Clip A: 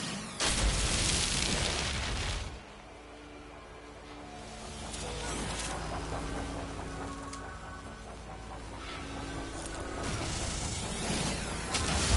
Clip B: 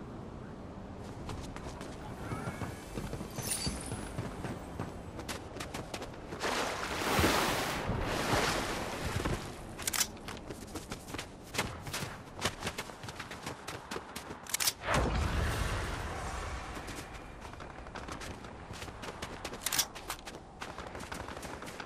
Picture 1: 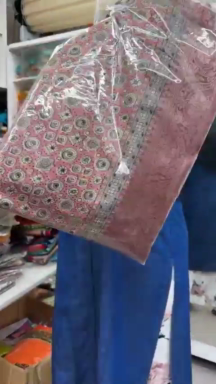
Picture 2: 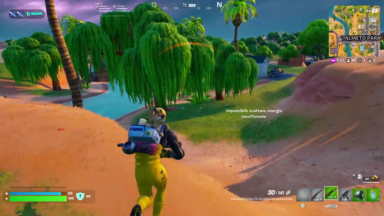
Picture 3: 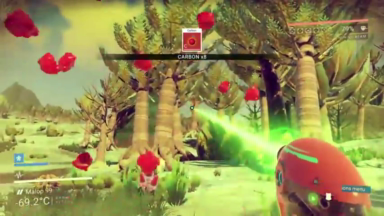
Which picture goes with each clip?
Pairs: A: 3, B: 2